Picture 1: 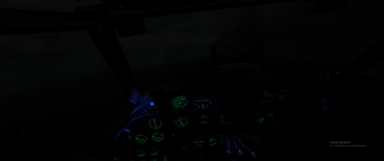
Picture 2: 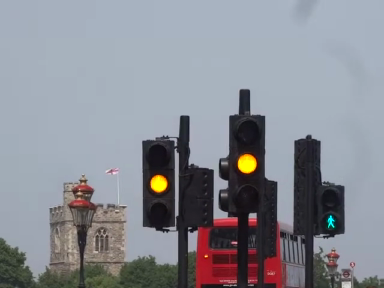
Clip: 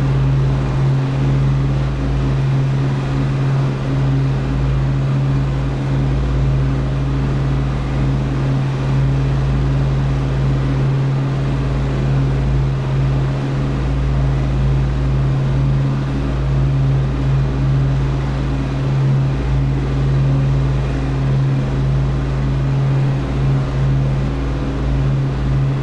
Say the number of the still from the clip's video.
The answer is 1